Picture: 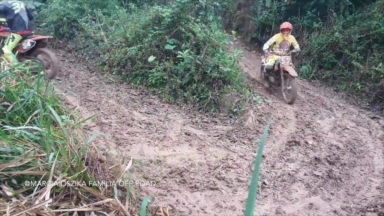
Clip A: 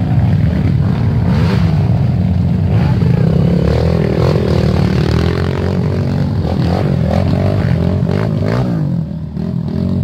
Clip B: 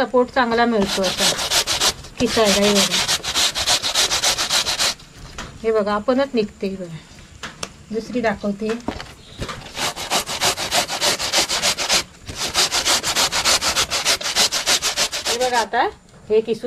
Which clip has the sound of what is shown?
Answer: A